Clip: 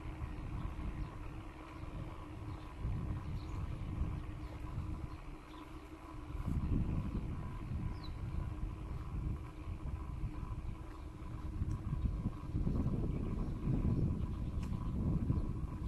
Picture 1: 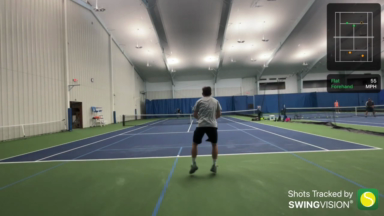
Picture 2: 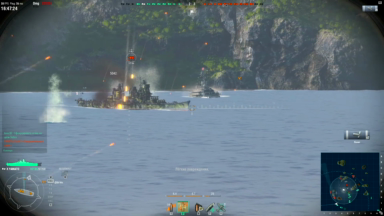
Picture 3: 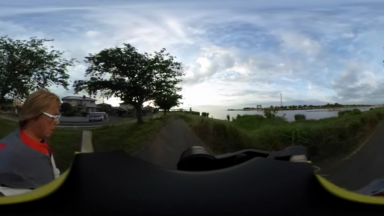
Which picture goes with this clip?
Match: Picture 3